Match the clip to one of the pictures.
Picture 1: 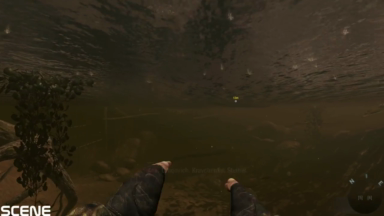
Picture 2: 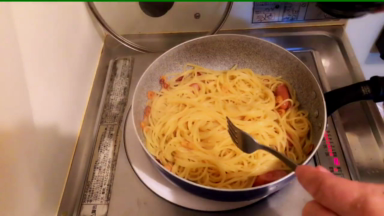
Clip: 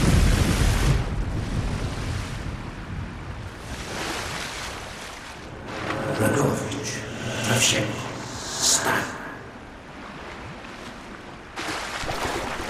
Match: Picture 1